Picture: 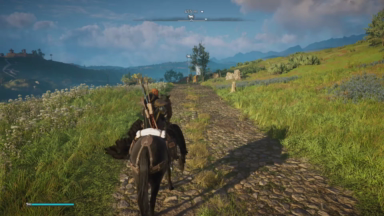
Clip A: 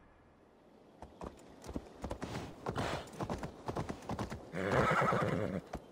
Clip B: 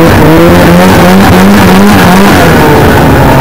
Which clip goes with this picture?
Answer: A